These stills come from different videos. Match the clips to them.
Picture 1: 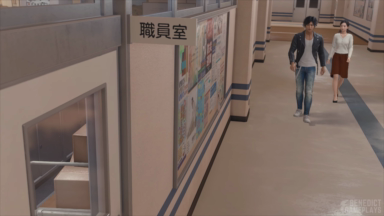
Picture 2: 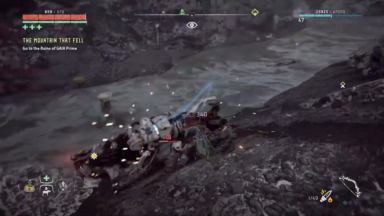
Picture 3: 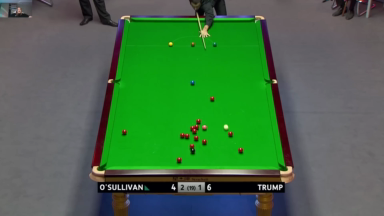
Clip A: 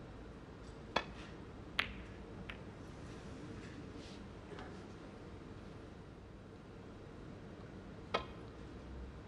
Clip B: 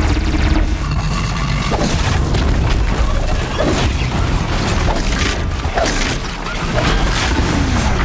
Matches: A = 3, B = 2